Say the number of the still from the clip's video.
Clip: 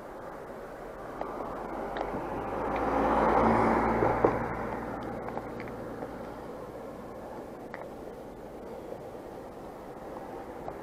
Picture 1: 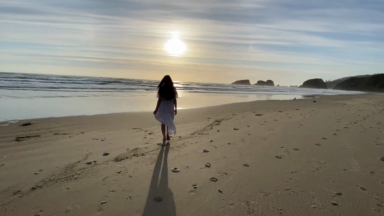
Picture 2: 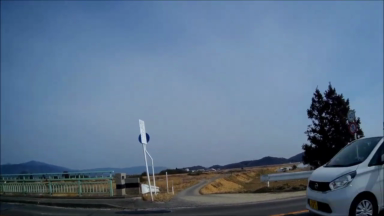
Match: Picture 2